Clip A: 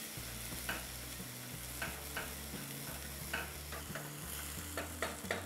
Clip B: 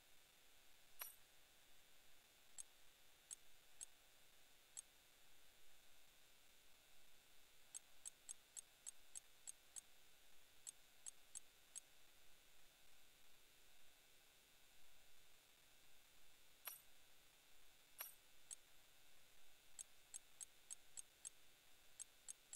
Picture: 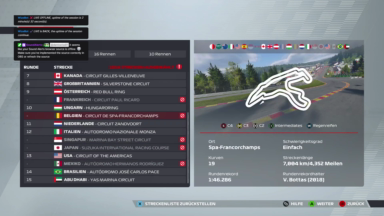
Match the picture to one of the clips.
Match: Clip B